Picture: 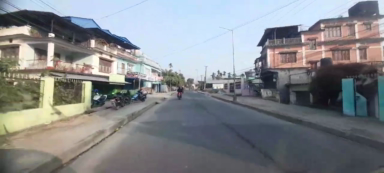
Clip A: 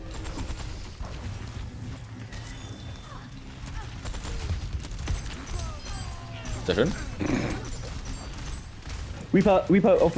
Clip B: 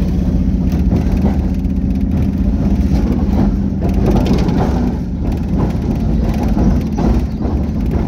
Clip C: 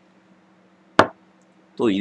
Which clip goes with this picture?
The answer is B